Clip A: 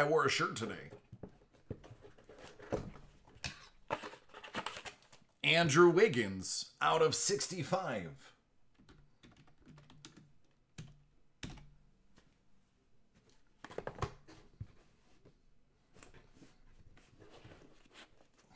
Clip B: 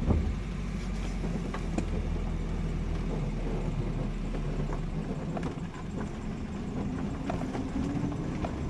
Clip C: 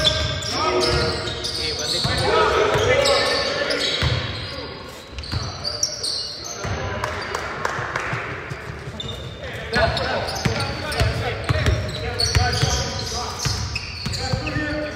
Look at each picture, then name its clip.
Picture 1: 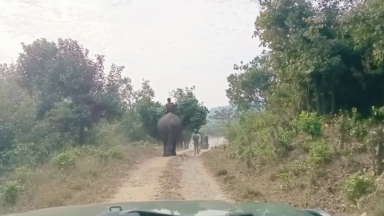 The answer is B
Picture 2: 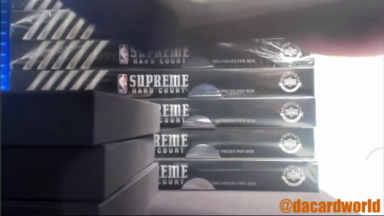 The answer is A